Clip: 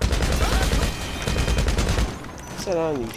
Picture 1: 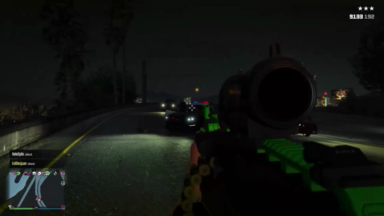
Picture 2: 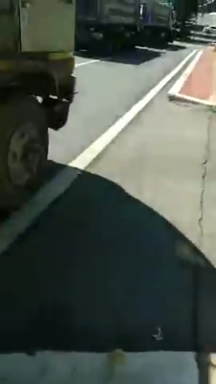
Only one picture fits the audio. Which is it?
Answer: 1